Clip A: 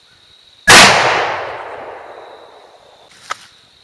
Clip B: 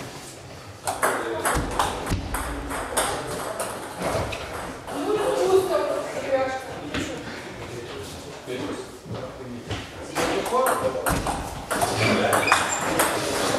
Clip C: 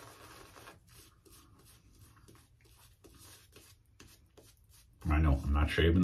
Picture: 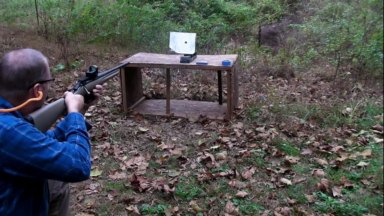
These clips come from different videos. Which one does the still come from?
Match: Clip A